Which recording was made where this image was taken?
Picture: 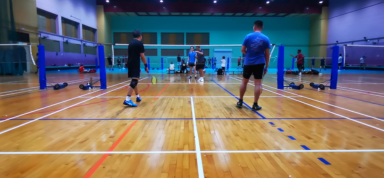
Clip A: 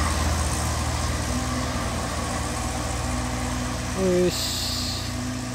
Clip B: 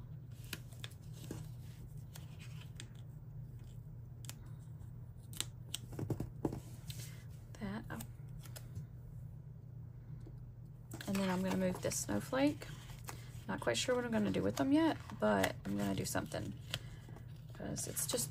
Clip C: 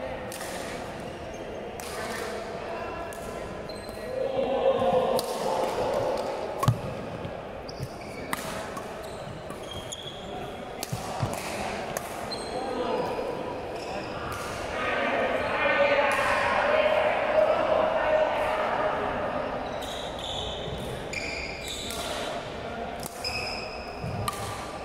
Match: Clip C